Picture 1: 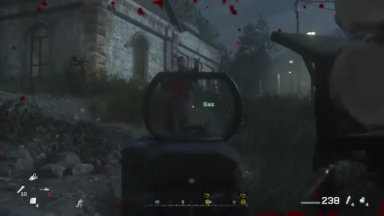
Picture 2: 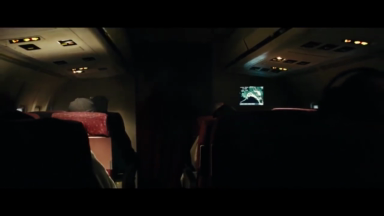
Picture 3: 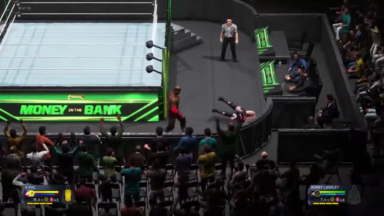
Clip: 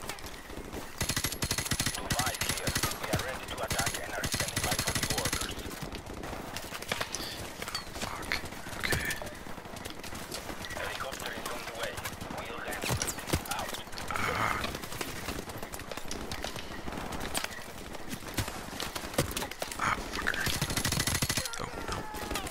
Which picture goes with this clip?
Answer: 1